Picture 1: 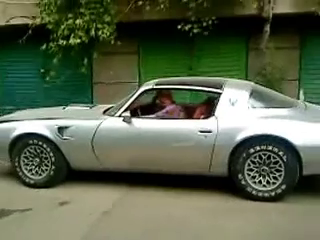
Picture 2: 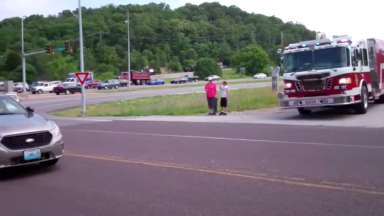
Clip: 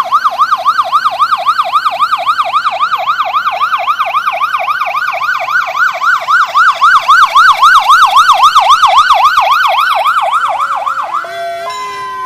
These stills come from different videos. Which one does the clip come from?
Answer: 2